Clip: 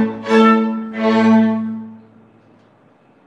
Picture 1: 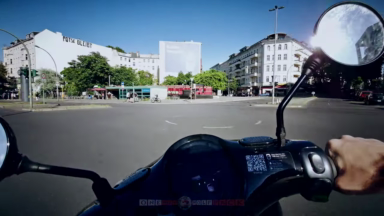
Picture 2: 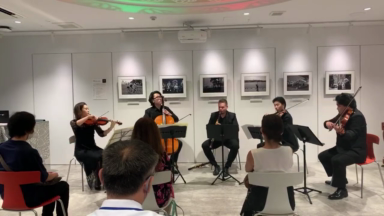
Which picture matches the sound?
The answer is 2